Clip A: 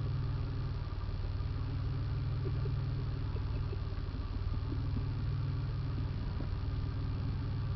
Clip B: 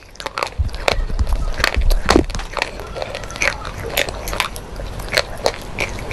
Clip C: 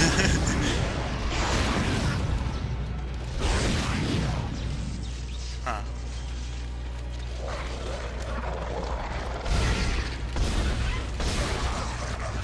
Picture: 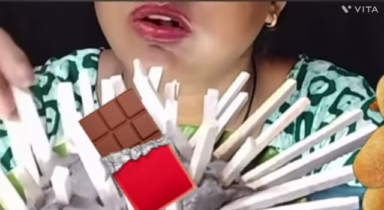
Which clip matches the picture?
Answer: B